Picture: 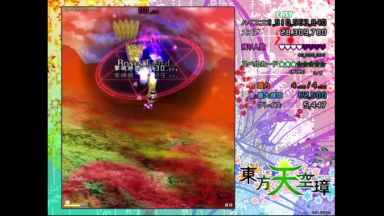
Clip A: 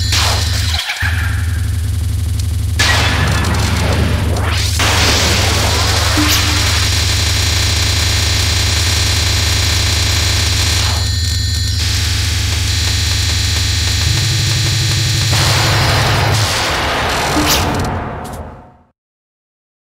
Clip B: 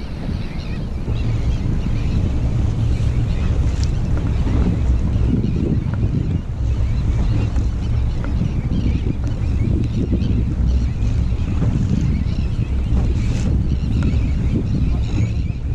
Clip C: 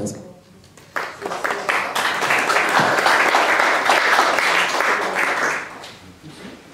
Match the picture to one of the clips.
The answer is A